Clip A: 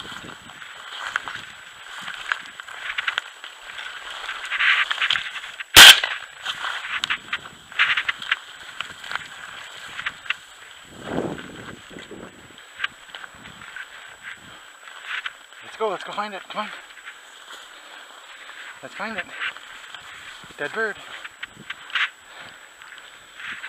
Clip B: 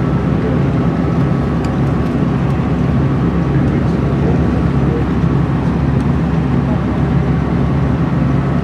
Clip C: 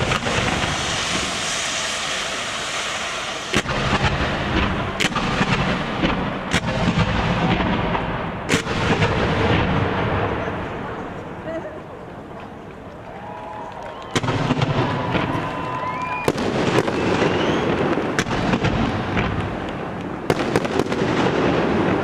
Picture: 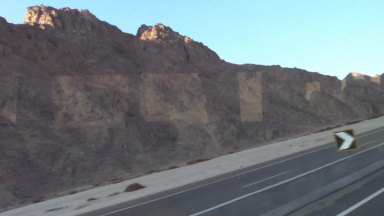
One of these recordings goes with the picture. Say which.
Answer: B